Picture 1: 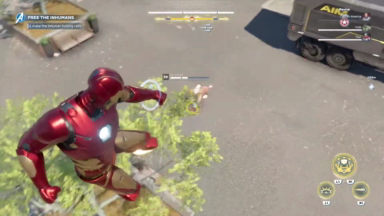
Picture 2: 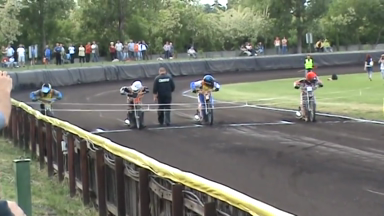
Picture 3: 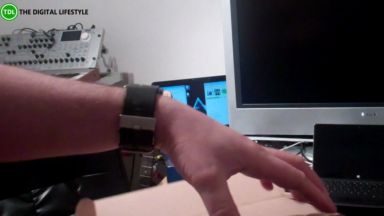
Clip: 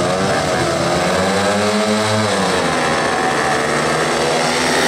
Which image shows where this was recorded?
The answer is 2